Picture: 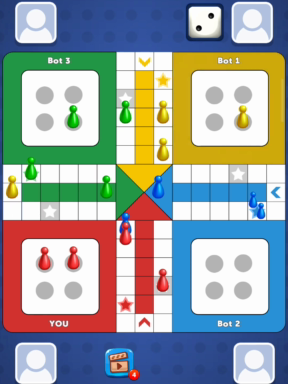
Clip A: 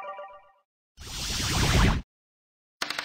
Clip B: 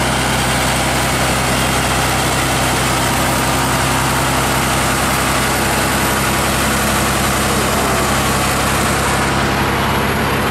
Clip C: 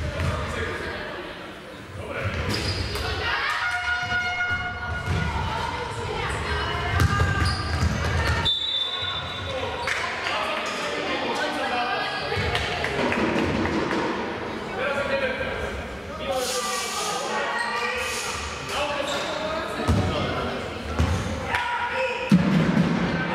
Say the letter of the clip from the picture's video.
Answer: A